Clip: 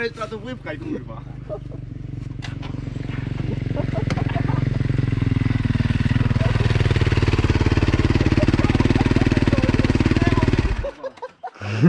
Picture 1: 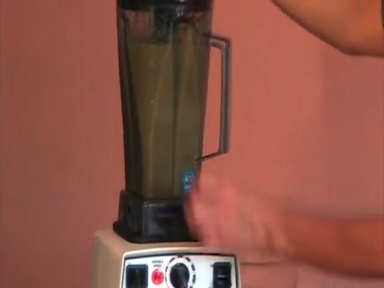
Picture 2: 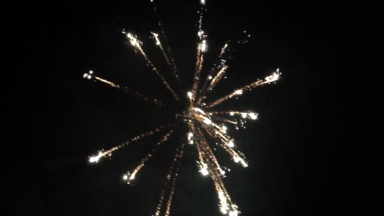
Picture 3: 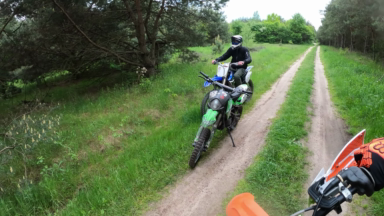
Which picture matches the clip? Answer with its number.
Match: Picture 3